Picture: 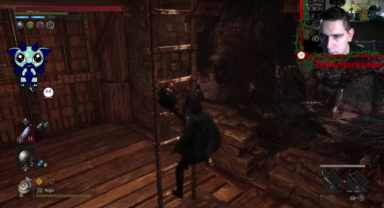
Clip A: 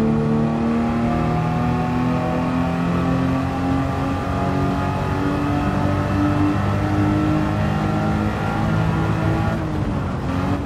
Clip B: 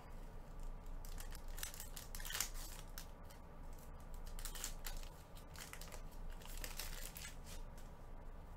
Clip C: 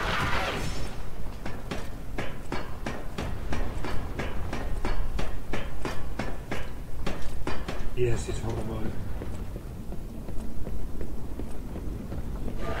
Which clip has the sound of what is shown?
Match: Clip C